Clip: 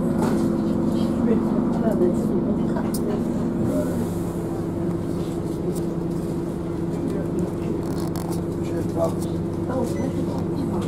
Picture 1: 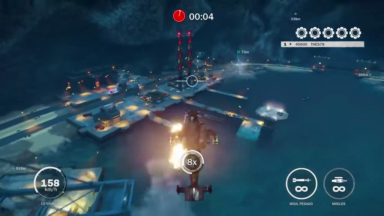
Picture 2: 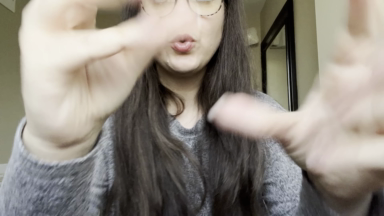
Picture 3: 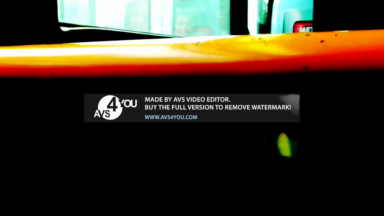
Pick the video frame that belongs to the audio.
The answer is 3